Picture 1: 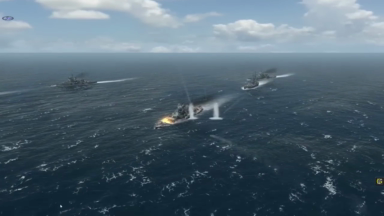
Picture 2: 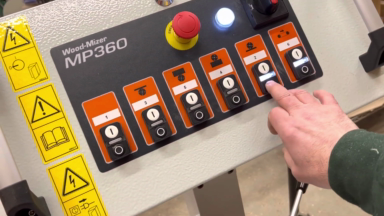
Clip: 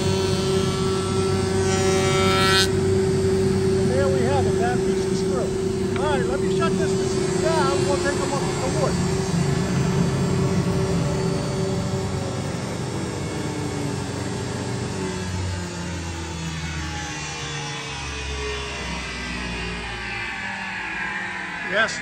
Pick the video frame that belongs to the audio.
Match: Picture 2